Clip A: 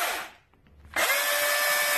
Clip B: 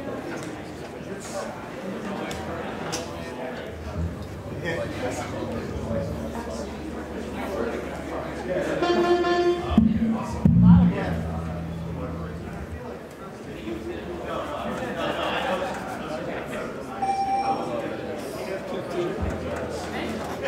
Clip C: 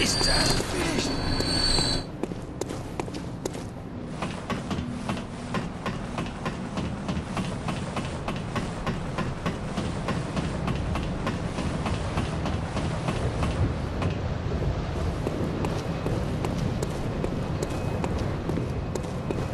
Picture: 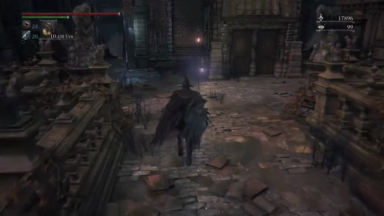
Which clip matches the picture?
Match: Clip C